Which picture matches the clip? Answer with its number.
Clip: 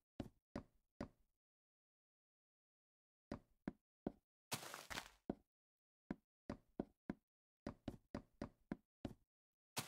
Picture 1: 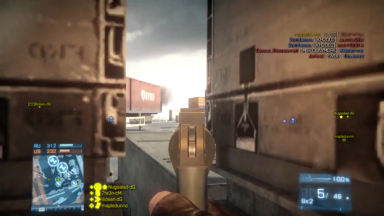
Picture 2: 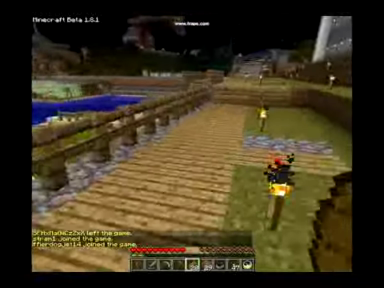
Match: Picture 2